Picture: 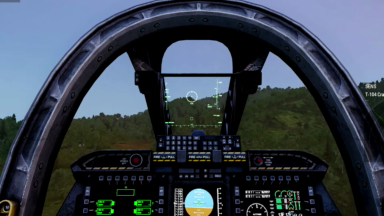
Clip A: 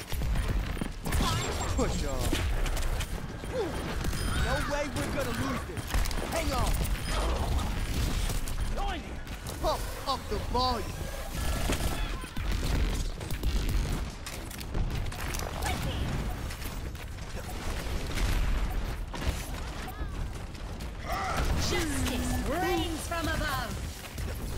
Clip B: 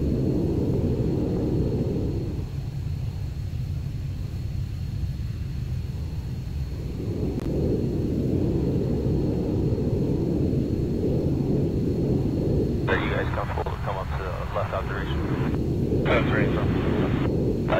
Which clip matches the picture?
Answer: B